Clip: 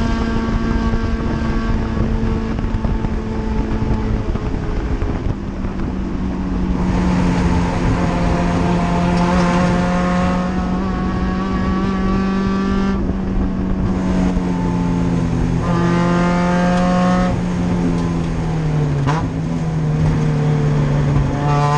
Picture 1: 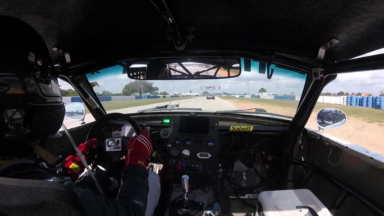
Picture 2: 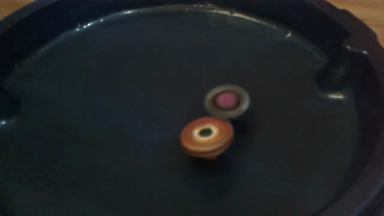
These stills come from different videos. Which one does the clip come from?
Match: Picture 1